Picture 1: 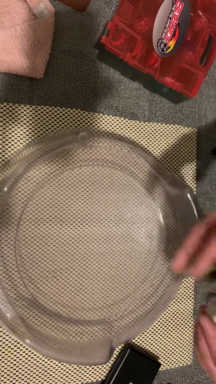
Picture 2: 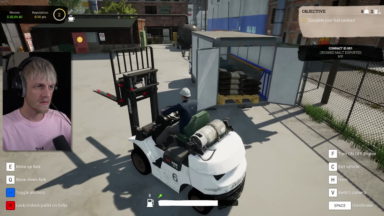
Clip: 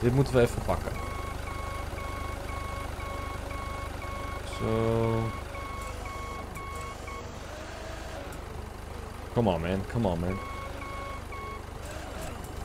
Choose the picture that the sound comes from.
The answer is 2